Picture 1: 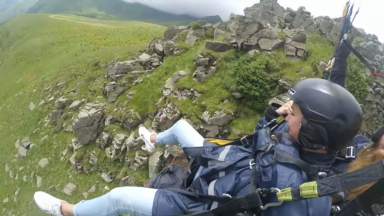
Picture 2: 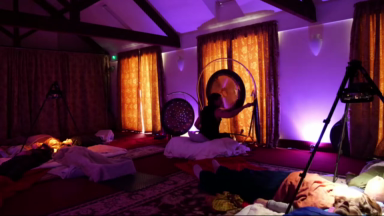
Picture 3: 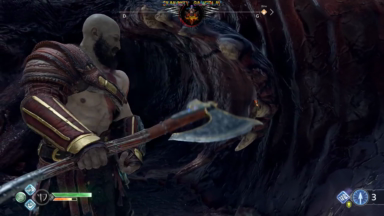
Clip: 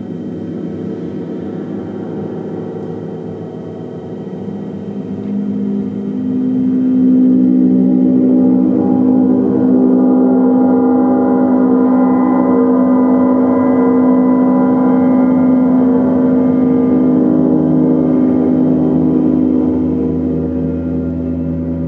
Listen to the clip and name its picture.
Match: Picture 2